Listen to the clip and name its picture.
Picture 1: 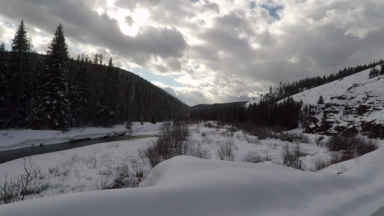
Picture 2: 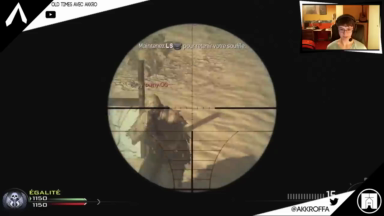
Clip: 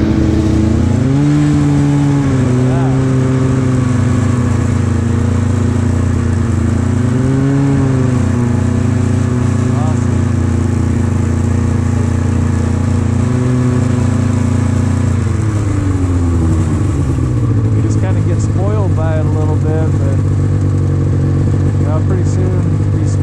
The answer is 1